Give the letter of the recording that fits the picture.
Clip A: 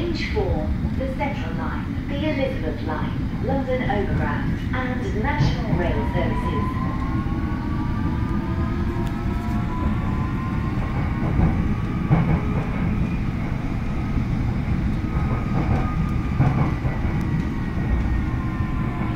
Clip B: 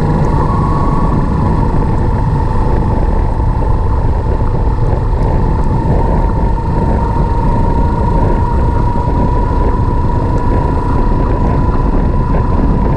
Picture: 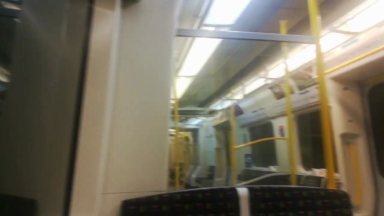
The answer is A